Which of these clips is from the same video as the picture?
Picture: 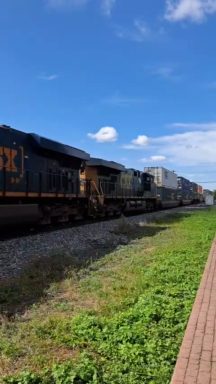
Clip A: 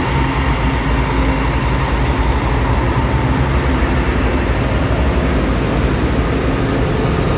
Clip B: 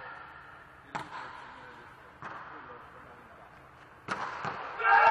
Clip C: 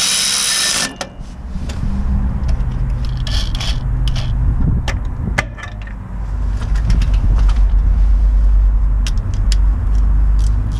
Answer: A